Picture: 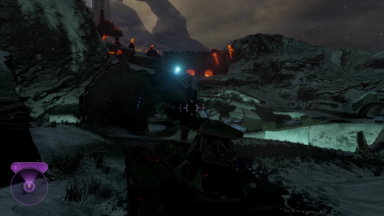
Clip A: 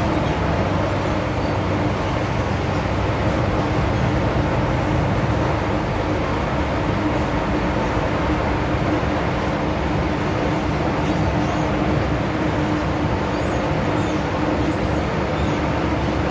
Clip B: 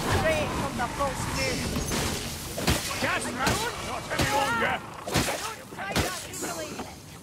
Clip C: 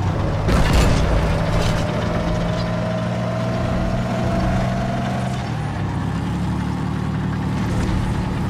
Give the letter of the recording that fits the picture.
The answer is C